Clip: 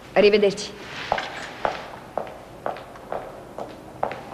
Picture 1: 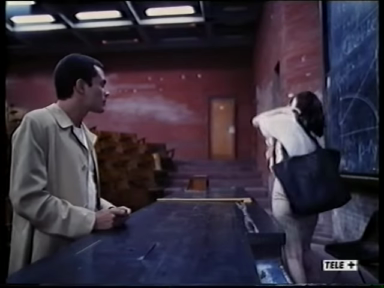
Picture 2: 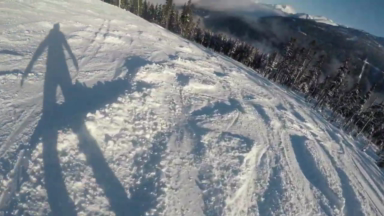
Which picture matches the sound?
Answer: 1